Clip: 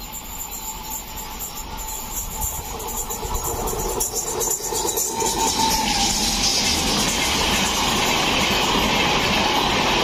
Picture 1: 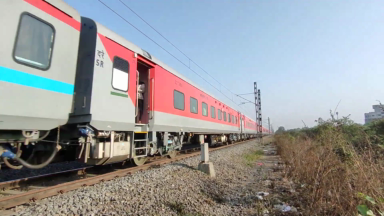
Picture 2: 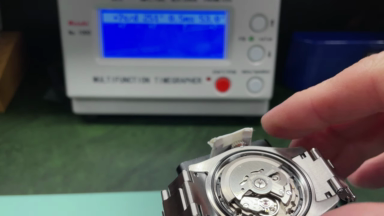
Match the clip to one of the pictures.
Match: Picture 1